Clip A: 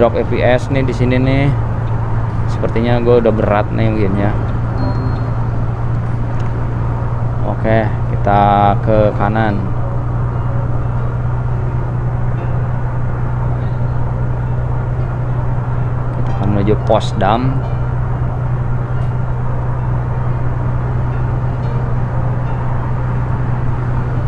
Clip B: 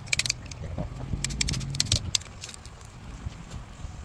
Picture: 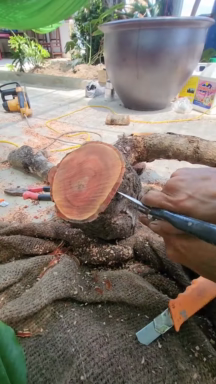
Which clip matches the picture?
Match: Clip B